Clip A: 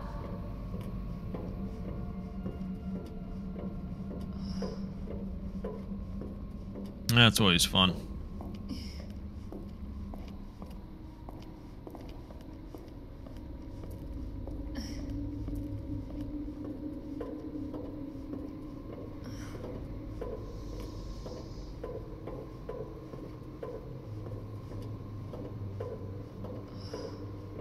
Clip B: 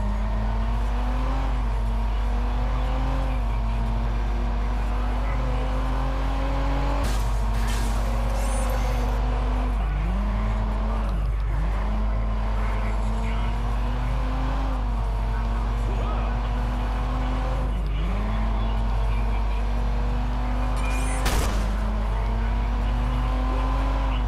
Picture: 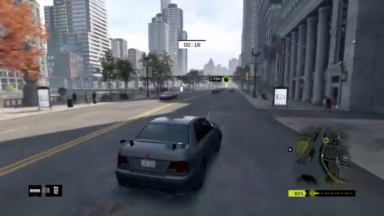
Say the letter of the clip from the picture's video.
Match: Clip B